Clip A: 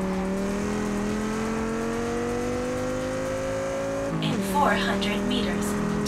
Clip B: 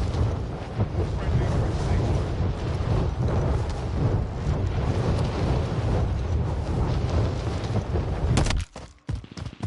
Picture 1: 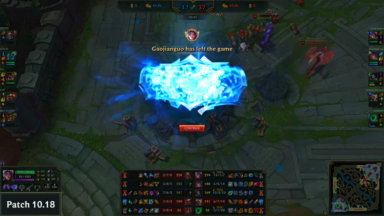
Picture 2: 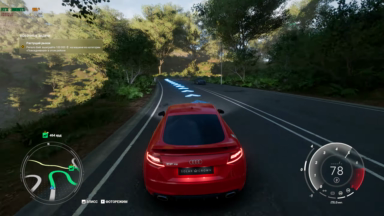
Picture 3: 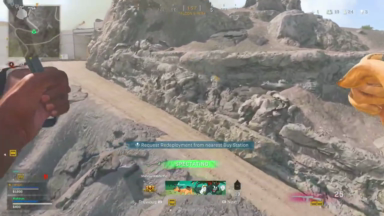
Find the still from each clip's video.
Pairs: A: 2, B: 3